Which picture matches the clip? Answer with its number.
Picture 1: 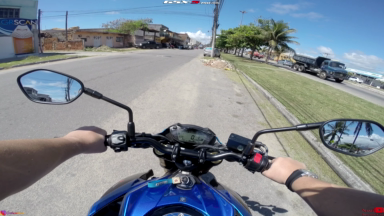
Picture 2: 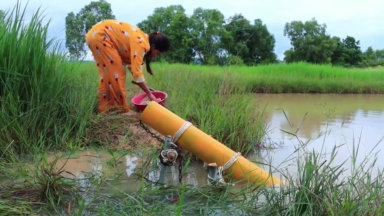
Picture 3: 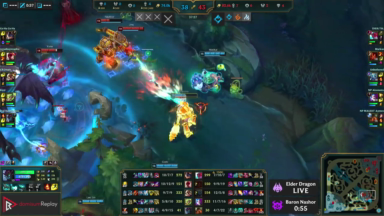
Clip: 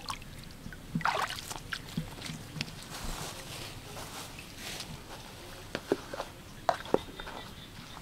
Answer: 2